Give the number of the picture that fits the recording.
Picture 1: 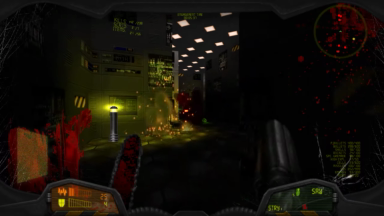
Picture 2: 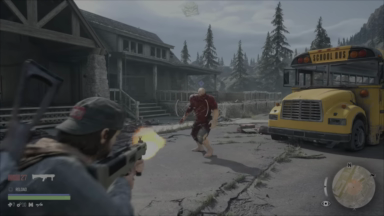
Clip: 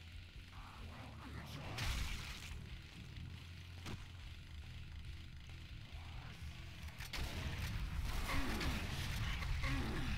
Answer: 1